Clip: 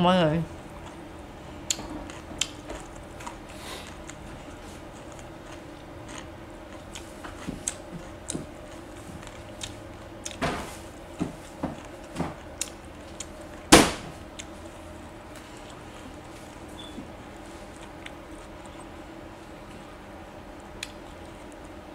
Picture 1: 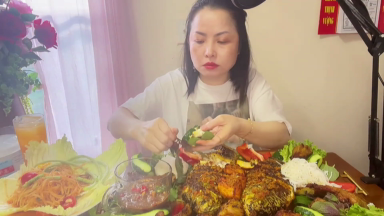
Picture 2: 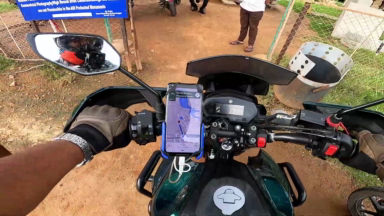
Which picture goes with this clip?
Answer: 1